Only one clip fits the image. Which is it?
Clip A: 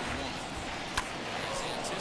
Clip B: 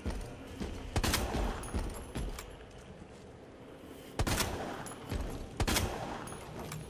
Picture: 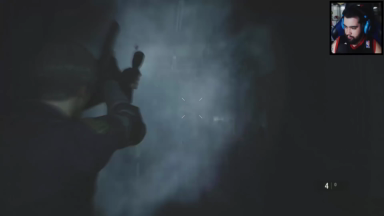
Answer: B